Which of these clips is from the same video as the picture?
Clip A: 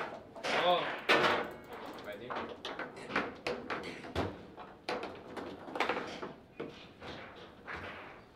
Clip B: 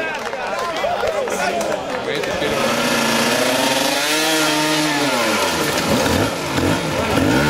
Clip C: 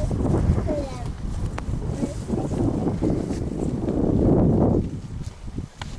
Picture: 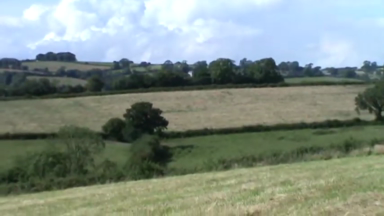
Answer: C